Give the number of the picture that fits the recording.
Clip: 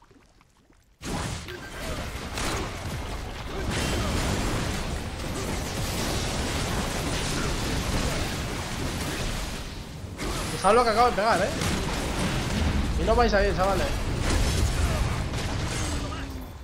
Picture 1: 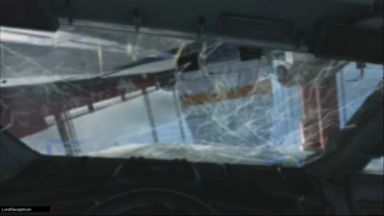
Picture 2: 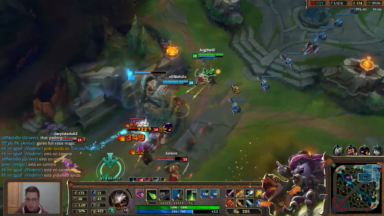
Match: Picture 2